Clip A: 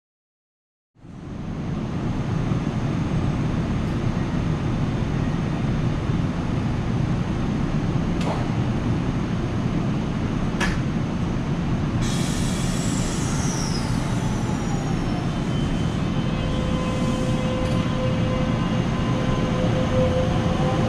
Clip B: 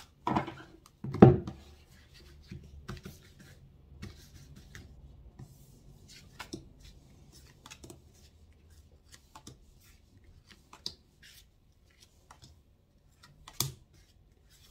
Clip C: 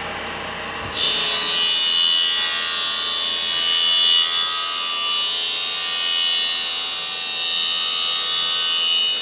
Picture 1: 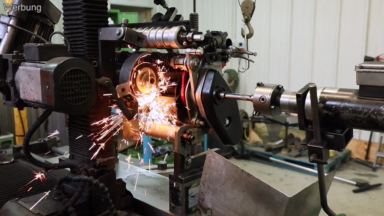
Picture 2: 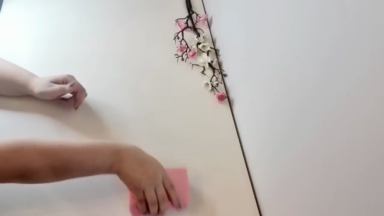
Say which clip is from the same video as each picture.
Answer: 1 C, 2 B